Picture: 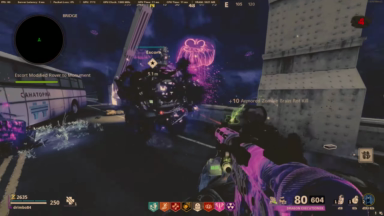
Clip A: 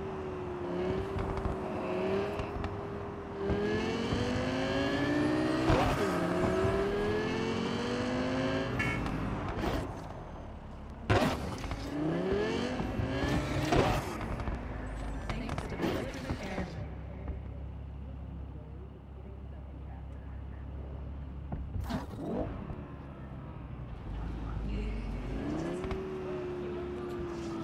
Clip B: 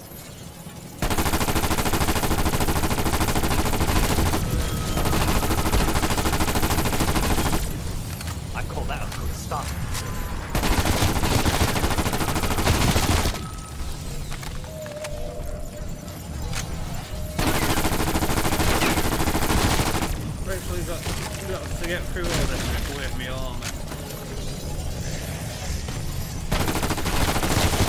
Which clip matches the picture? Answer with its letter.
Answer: B